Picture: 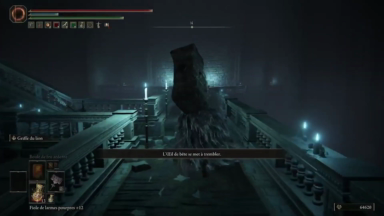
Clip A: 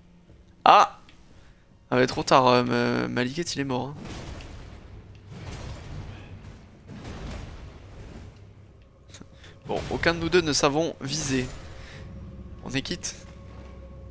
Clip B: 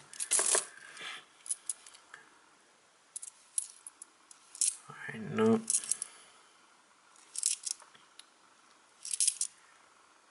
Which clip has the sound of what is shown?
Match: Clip A